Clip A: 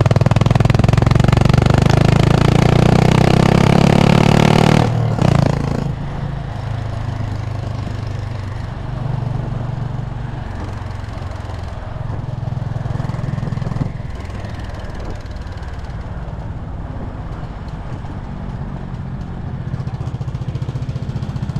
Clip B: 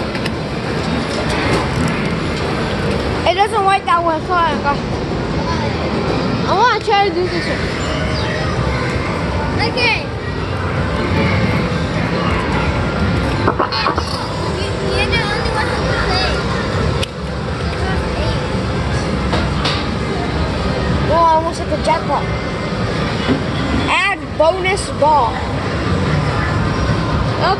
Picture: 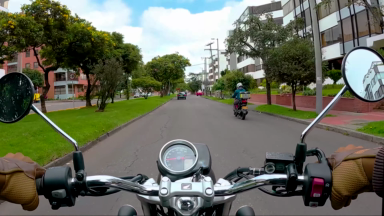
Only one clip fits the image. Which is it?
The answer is A